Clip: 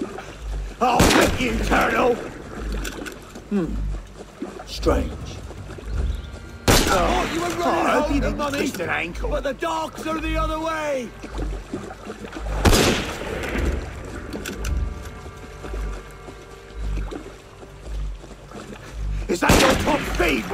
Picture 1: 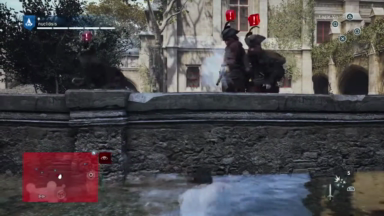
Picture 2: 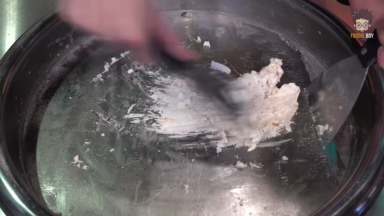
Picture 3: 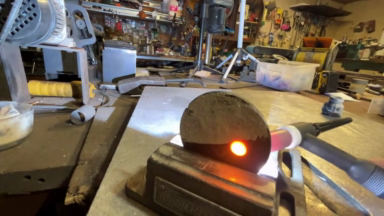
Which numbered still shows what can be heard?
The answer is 1